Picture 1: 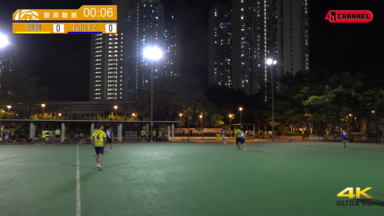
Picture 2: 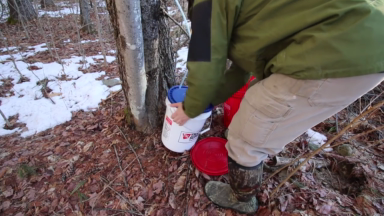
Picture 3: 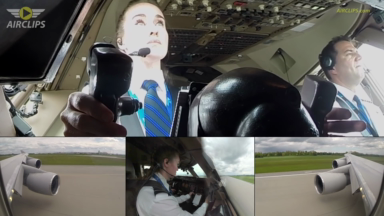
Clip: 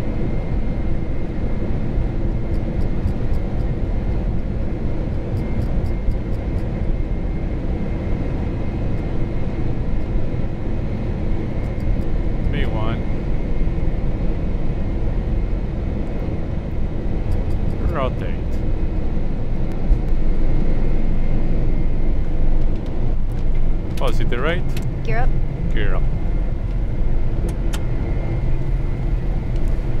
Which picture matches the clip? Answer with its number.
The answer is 3